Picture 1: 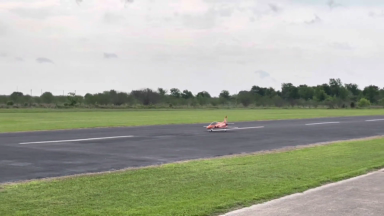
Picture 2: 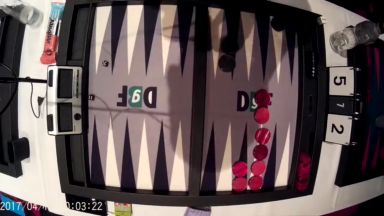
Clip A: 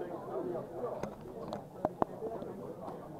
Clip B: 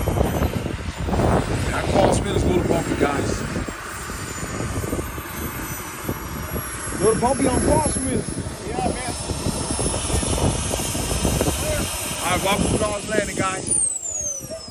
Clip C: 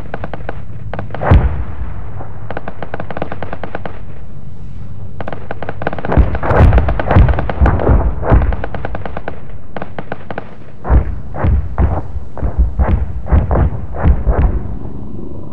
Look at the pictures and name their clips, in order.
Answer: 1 B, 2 A